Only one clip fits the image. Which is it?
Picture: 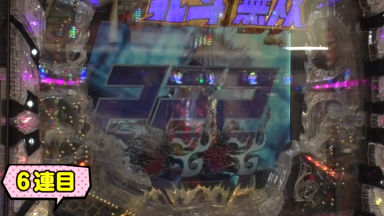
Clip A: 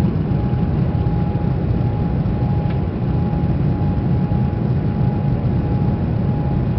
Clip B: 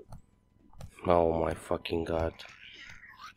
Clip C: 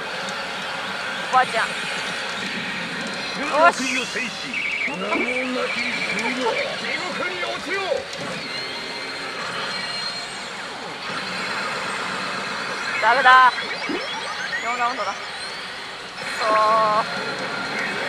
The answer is C